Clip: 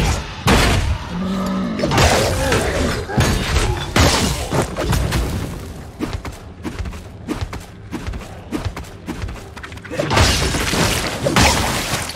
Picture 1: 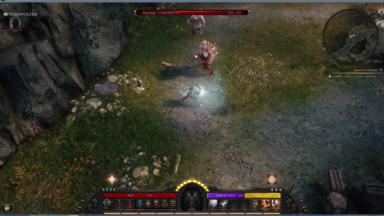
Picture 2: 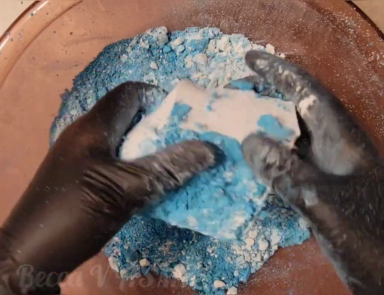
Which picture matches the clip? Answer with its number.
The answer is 1